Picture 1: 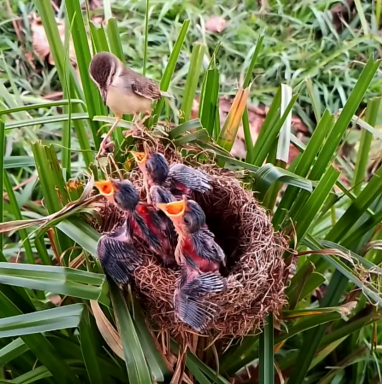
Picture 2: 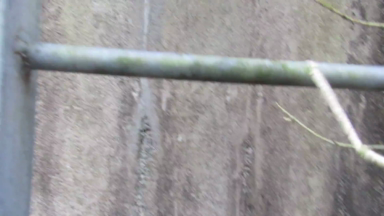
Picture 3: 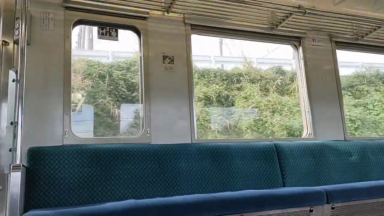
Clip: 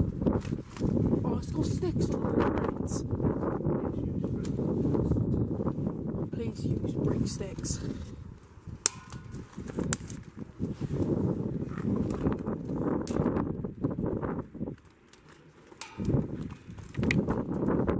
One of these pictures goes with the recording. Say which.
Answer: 2